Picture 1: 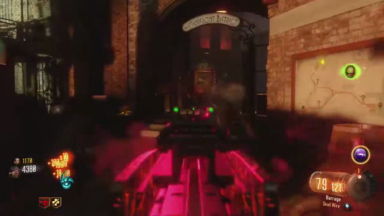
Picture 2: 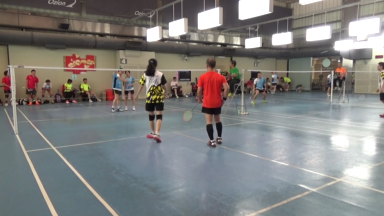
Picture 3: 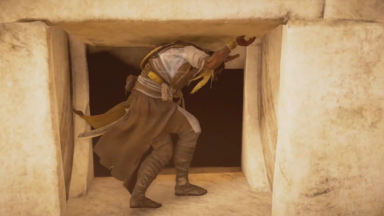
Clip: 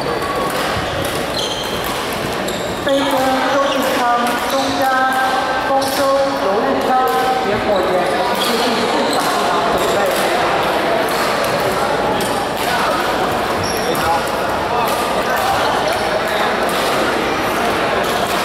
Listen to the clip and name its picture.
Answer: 2